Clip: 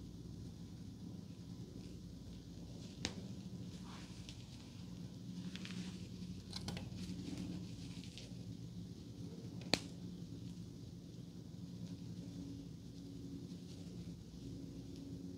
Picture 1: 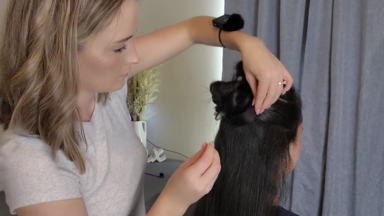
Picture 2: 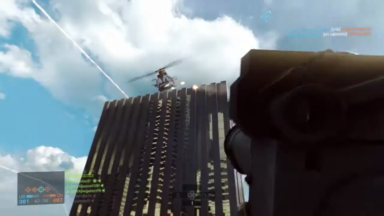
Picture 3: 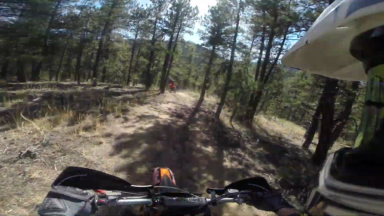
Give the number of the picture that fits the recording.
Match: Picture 1